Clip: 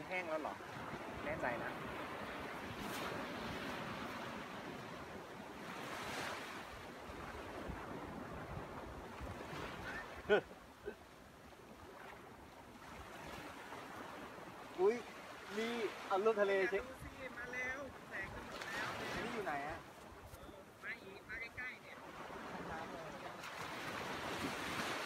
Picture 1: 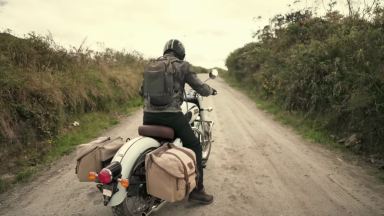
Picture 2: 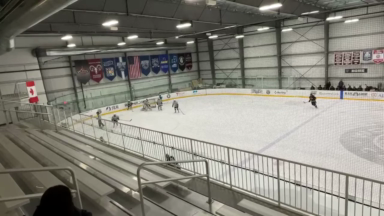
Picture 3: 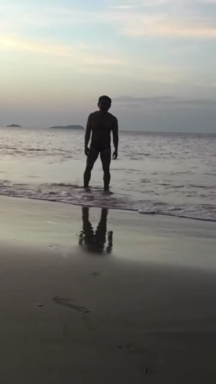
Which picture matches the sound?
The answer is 3